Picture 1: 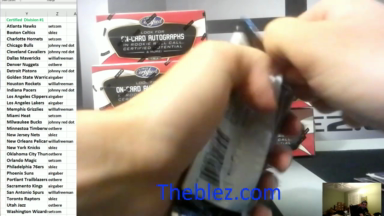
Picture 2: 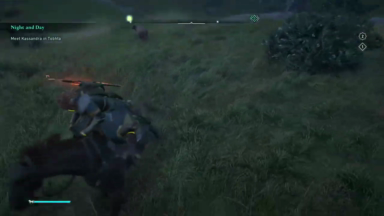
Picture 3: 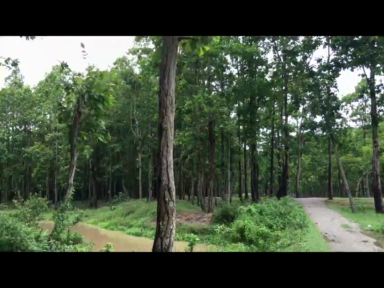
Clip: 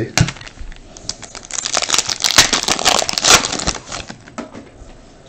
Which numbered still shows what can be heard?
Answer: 1